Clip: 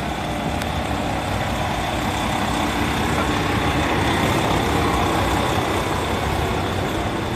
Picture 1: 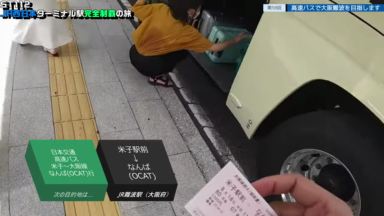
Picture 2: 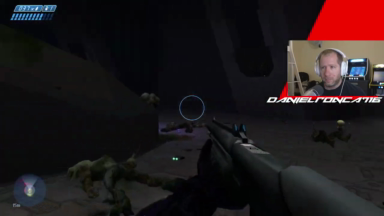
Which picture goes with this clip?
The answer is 1